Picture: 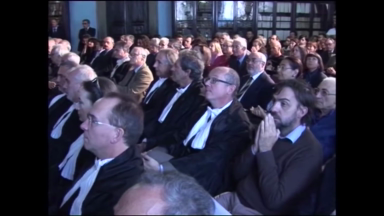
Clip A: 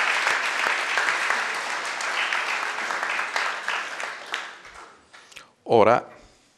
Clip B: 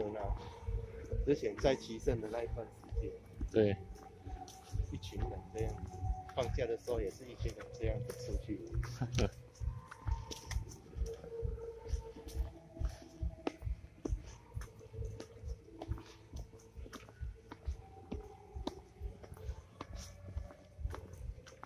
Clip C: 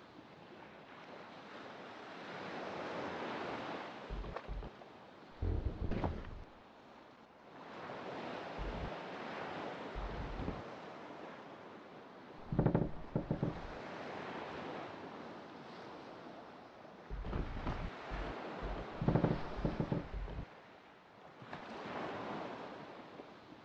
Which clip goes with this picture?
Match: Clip A